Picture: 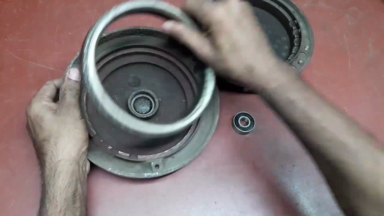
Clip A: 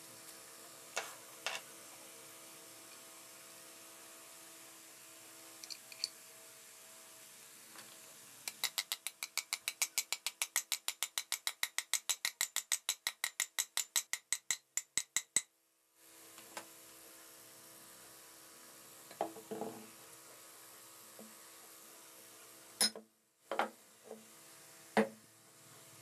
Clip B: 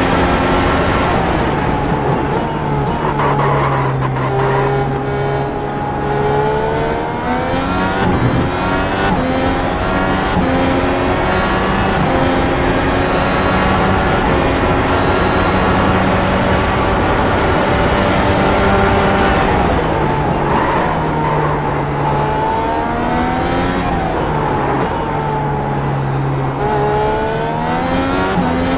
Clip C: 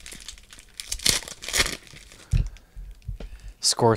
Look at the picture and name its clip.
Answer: A